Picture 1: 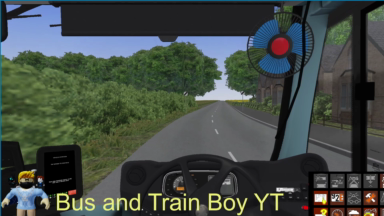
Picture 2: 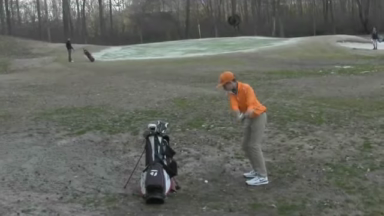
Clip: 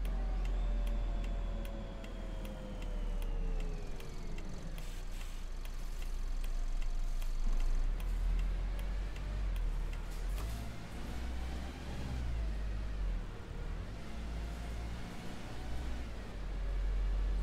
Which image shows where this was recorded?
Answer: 1